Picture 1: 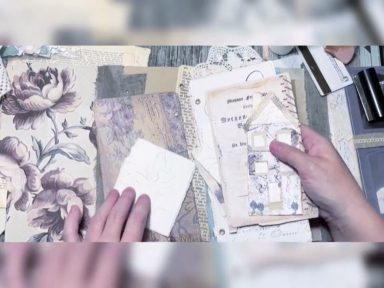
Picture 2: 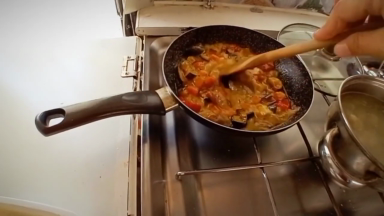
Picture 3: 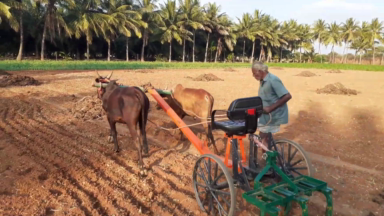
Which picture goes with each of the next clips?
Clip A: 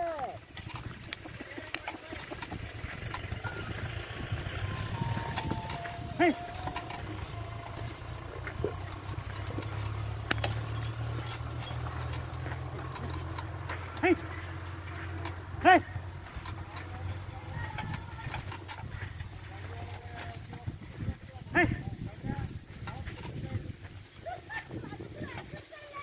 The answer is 3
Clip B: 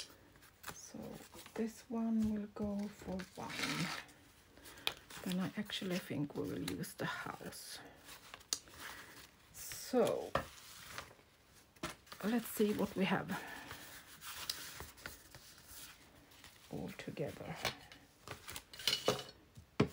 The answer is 1